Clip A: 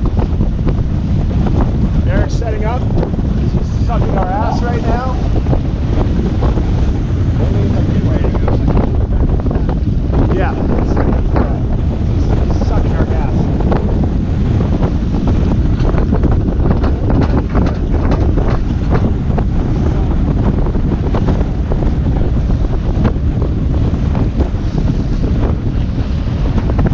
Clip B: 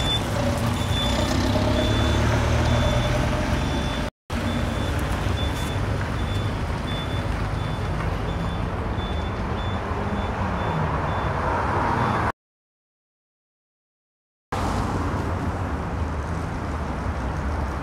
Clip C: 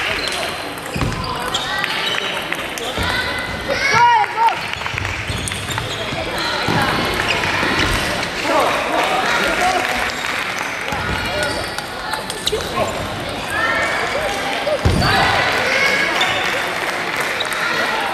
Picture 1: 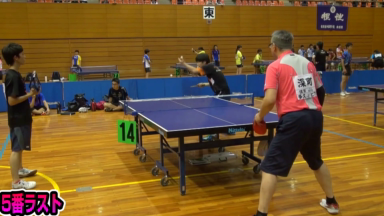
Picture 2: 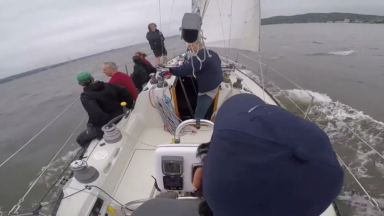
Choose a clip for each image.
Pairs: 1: C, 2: A